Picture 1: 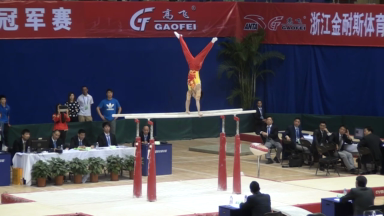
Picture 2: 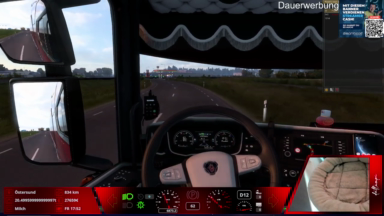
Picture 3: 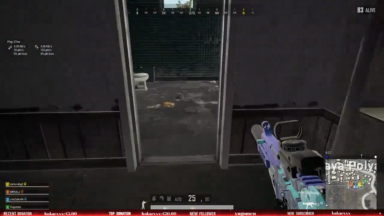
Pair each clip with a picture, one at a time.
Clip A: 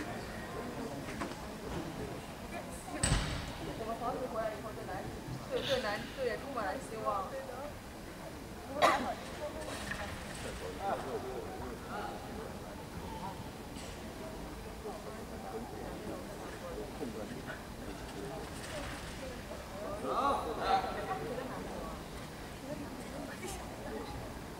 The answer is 1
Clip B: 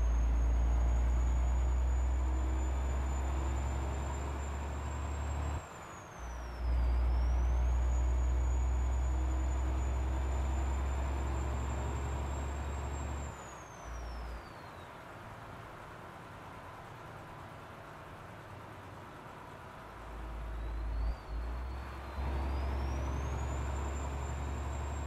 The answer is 2